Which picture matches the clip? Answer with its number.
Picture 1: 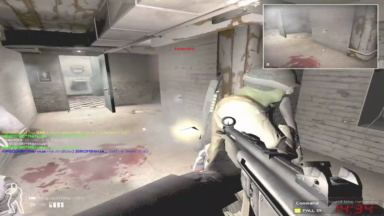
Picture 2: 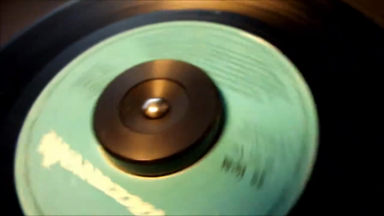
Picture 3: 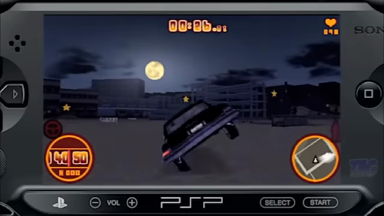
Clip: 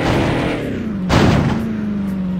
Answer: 3